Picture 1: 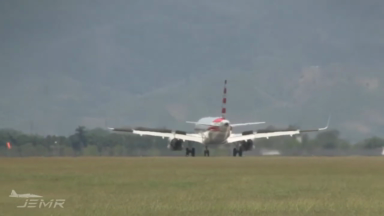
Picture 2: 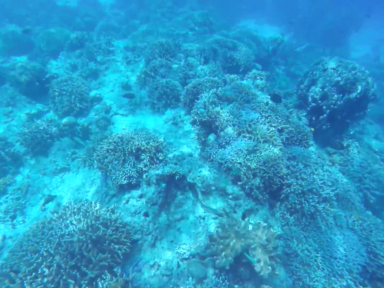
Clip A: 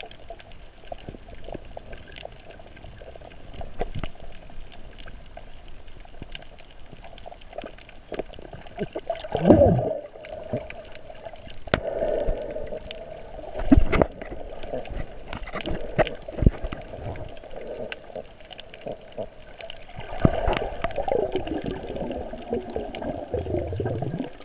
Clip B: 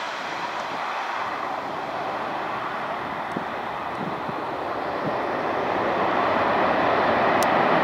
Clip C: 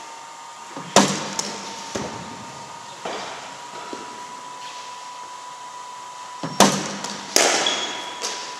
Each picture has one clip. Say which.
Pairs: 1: B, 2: A